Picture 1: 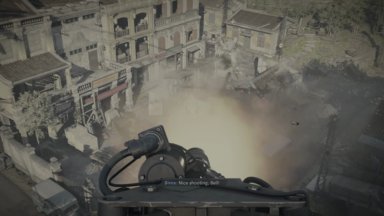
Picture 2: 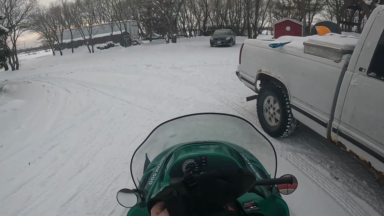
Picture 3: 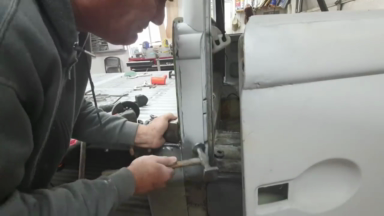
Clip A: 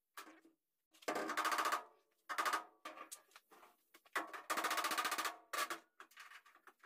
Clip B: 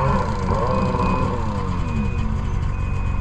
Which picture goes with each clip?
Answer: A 3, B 2